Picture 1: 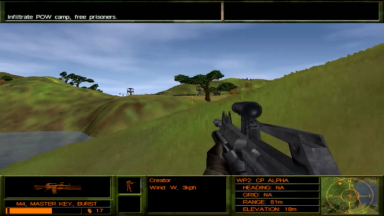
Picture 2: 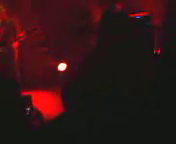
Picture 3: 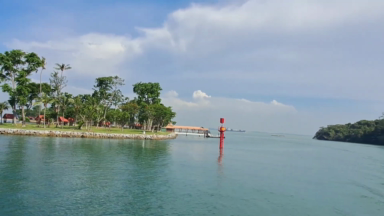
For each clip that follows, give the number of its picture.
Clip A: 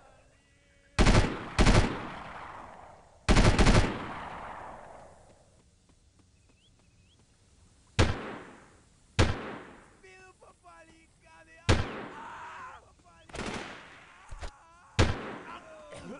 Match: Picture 1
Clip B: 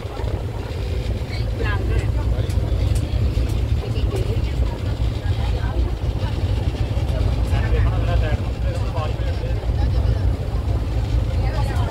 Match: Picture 3